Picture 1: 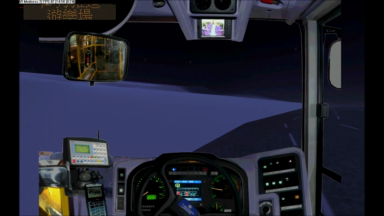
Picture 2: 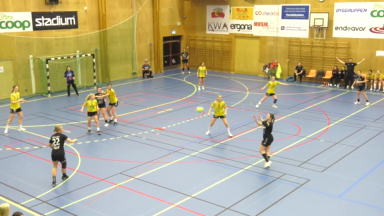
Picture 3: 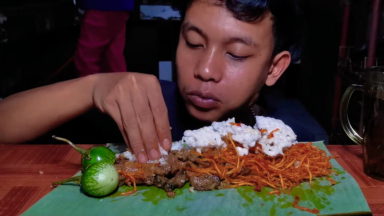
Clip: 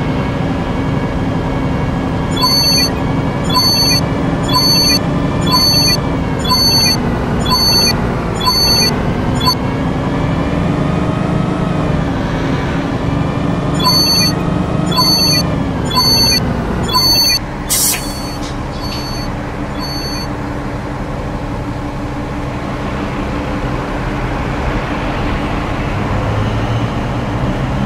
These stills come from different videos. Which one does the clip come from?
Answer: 1